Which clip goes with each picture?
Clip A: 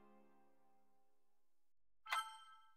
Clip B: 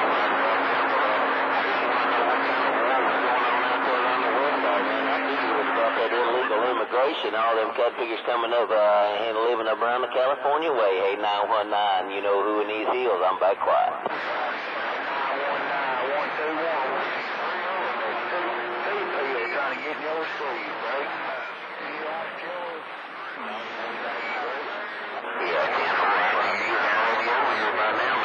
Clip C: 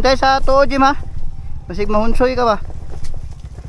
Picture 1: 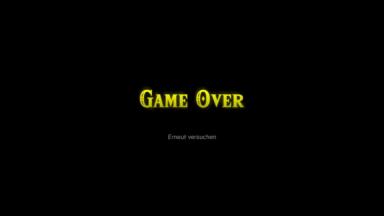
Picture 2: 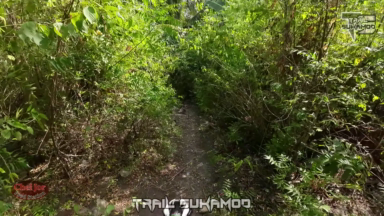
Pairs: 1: A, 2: C